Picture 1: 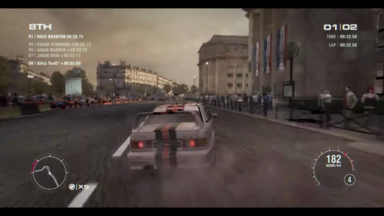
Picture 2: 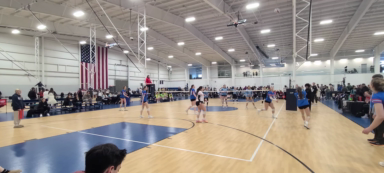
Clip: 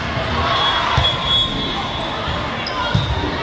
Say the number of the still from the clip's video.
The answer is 2